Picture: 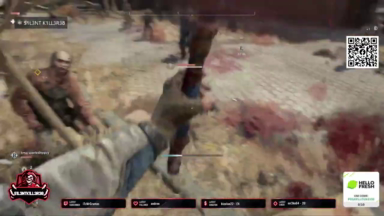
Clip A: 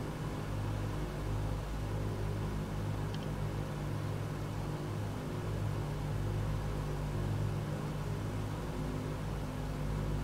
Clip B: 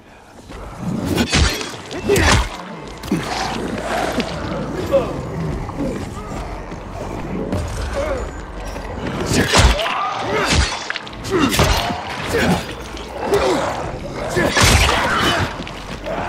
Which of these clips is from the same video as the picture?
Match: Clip B